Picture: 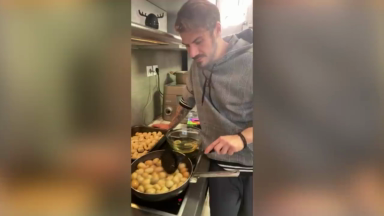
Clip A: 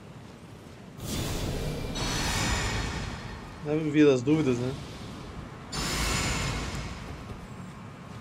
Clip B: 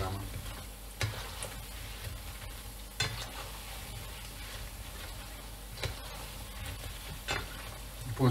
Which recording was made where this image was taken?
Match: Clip B